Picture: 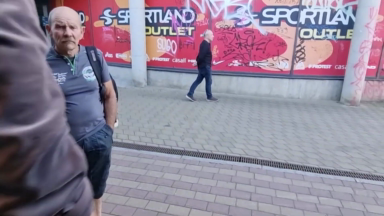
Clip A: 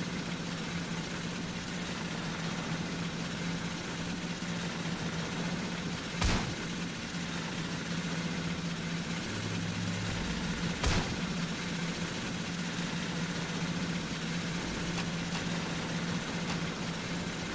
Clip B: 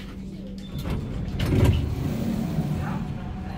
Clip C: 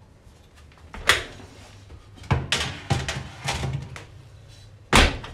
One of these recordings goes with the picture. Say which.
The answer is B